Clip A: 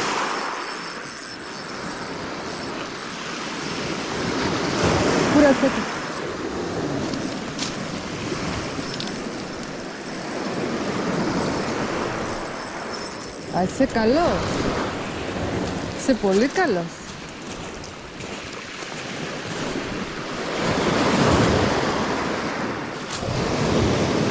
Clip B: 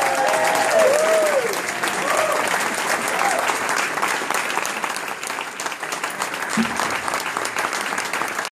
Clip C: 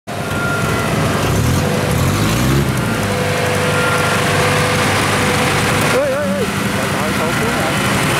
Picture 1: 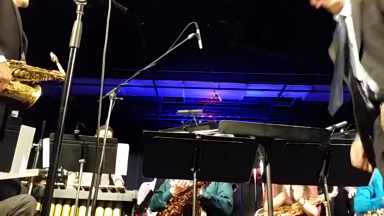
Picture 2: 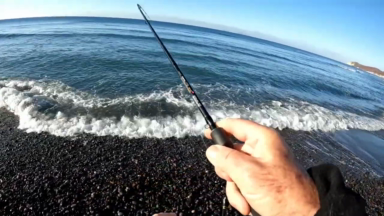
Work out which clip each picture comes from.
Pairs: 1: B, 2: A